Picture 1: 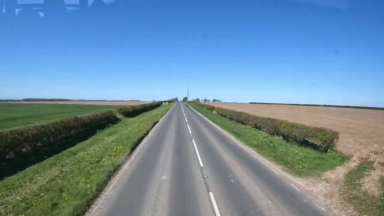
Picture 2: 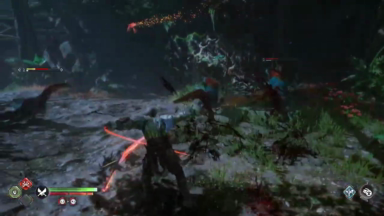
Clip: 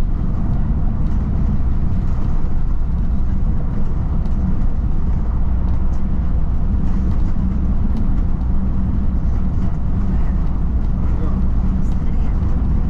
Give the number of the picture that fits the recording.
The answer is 1